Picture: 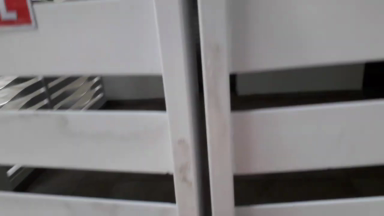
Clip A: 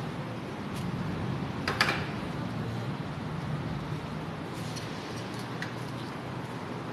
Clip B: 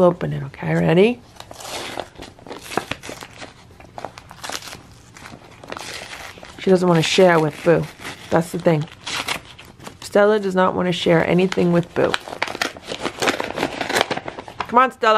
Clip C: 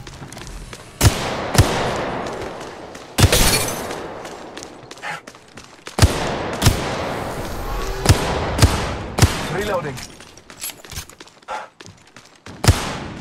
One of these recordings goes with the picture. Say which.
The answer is A